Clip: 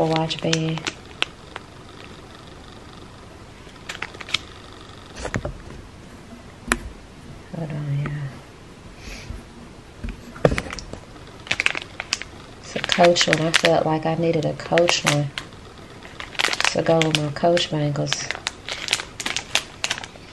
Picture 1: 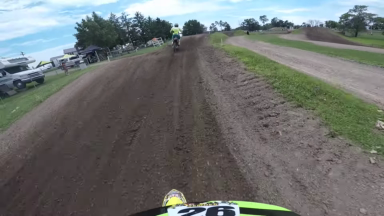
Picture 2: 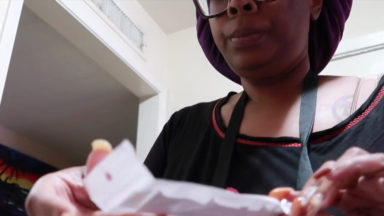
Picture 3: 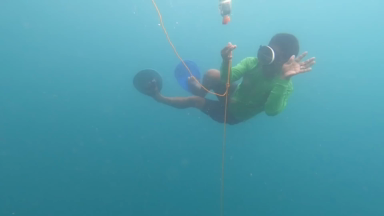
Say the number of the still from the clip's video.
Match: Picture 2